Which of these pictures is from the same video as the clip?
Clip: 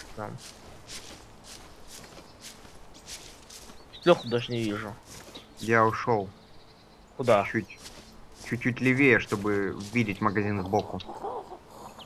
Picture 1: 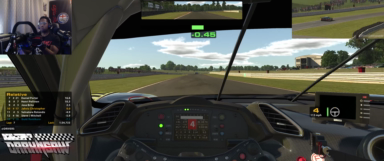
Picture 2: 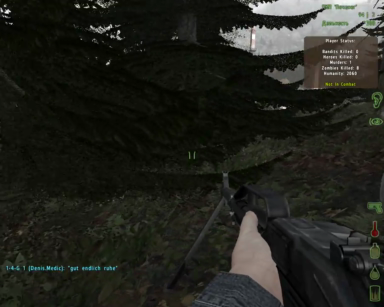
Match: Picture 2